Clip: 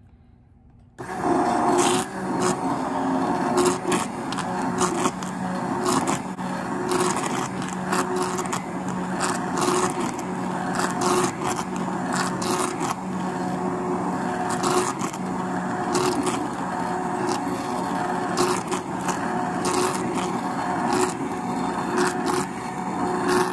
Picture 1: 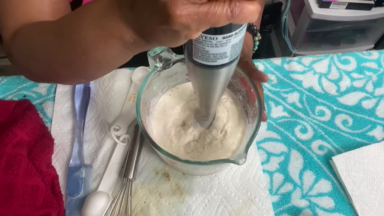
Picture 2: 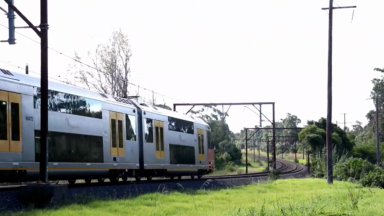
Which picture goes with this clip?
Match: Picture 1